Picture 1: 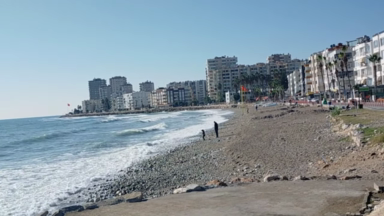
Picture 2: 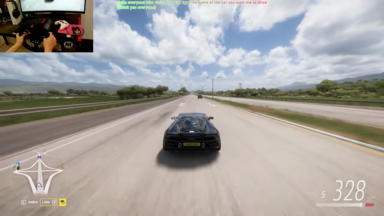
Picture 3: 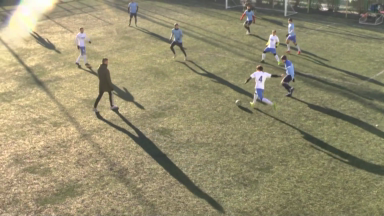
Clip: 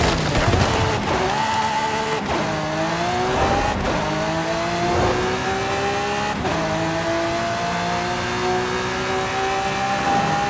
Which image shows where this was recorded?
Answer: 2